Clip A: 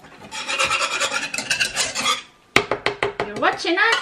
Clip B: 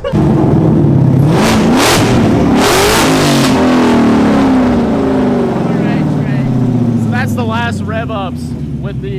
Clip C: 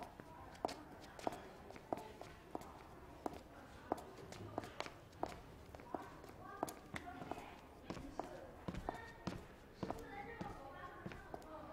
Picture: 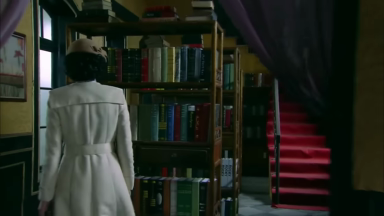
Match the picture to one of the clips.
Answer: C